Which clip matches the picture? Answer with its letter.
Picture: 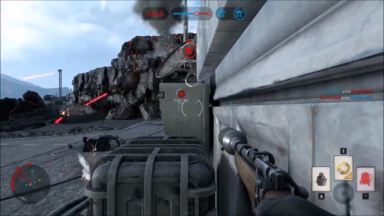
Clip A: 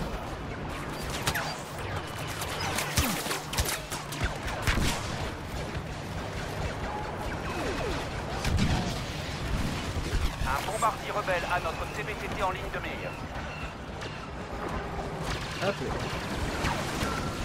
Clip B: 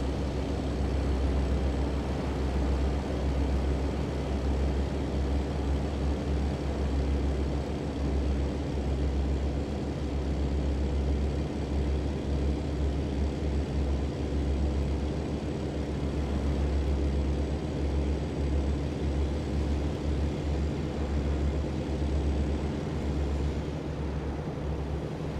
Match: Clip A